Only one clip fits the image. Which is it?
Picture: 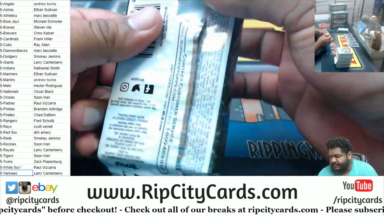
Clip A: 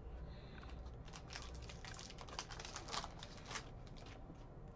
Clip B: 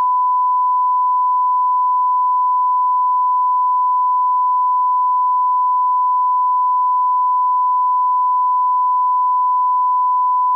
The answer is A